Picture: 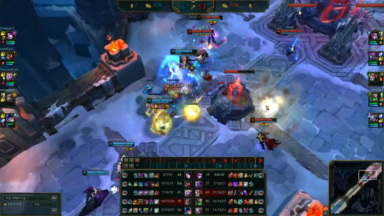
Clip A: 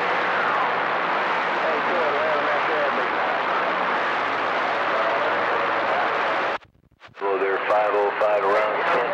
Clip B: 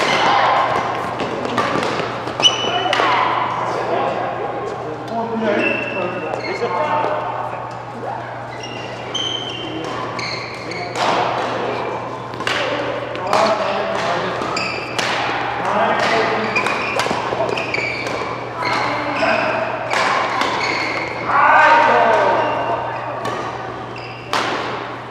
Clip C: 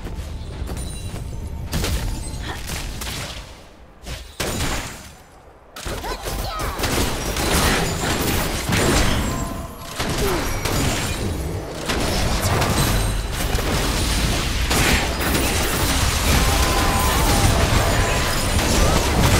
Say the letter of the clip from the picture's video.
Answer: C